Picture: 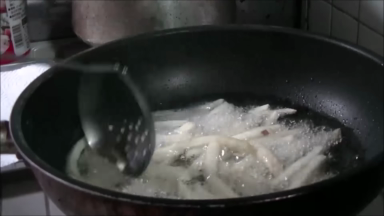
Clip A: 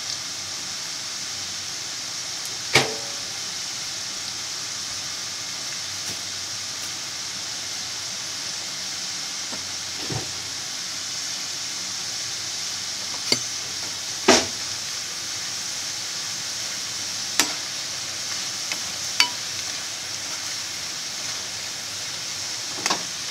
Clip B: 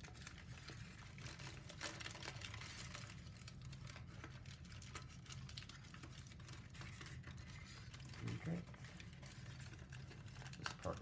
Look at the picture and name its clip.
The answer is A